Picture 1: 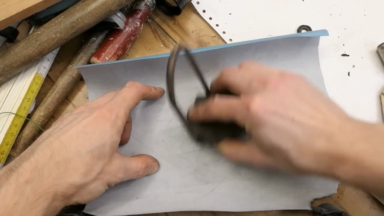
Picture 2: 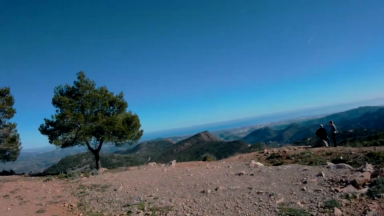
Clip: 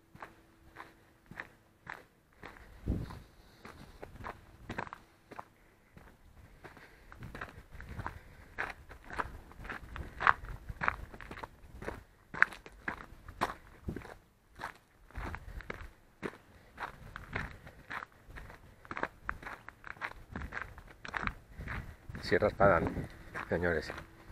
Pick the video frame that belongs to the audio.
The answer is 2